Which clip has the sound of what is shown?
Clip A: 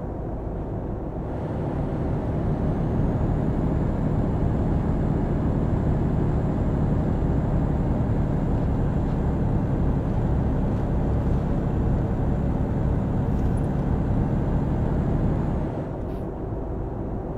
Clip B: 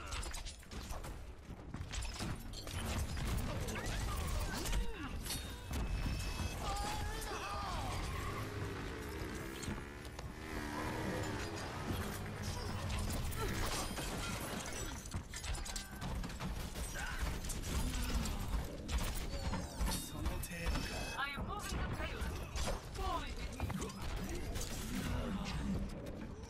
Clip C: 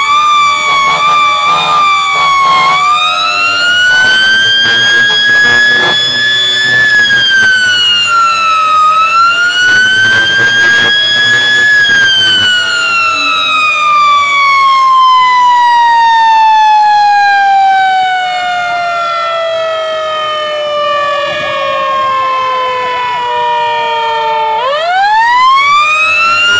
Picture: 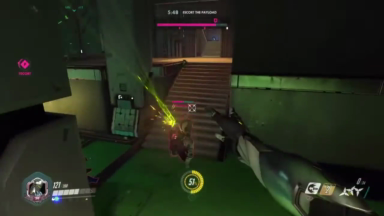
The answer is B